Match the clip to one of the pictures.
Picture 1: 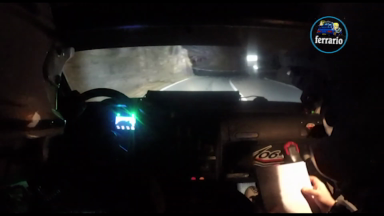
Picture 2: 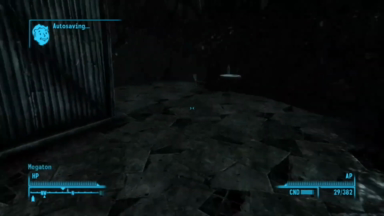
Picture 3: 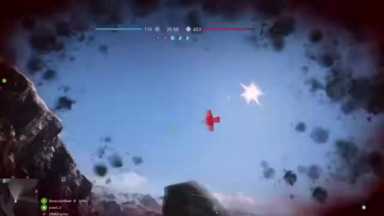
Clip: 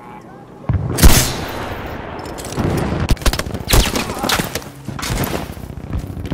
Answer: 3